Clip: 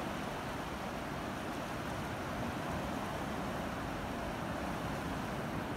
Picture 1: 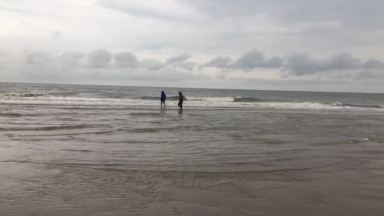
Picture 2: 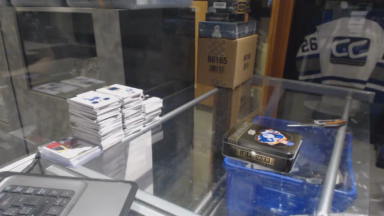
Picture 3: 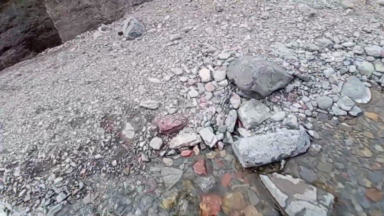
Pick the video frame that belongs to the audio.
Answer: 1